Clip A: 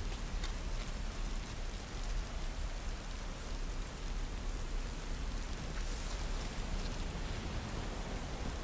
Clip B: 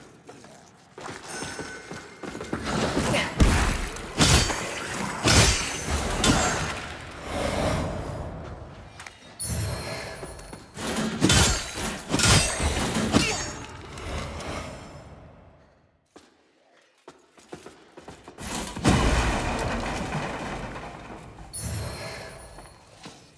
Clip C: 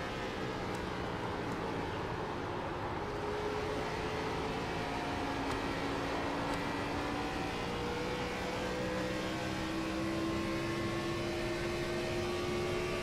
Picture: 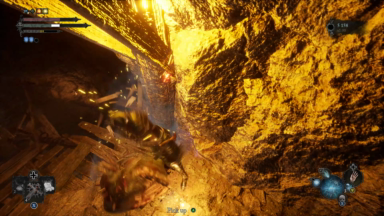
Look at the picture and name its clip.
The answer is B